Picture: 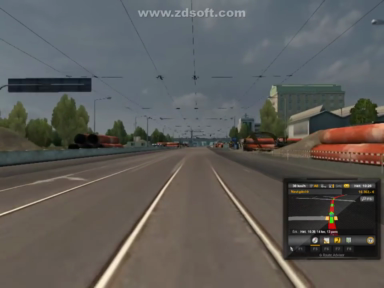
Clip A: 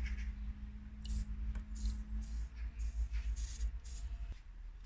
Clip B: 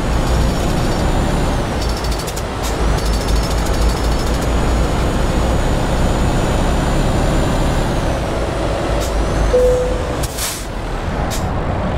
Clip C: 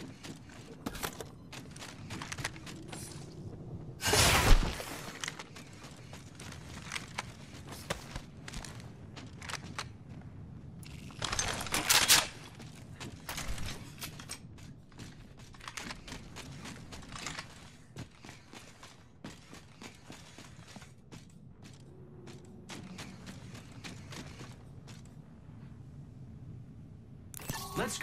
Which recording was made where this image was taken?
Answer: B